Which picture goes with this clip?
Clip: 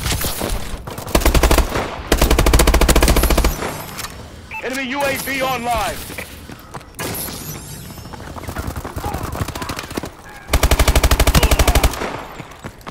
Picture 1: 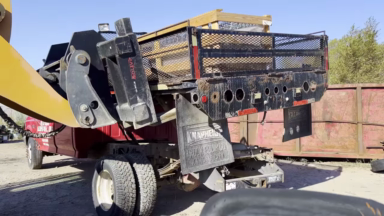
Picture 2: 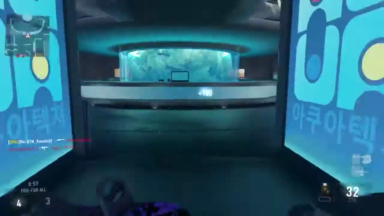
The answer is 2